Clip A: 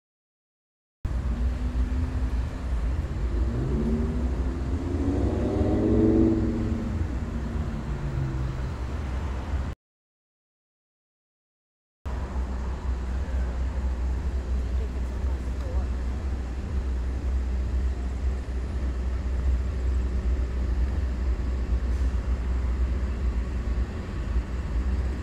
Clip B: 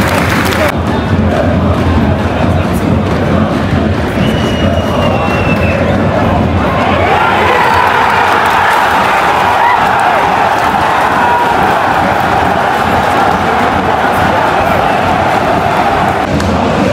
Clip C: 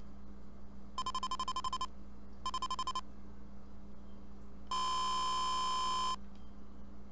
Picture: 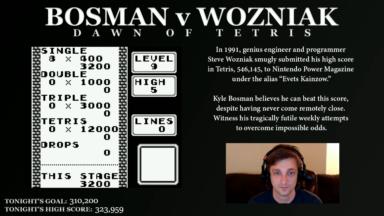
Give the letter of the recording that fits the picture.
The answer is C